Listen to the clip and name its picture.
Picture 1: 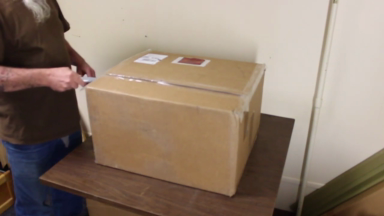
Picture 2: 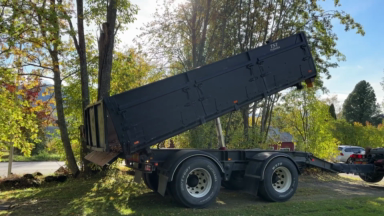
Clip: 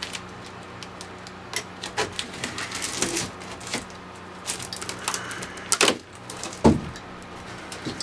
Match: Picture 1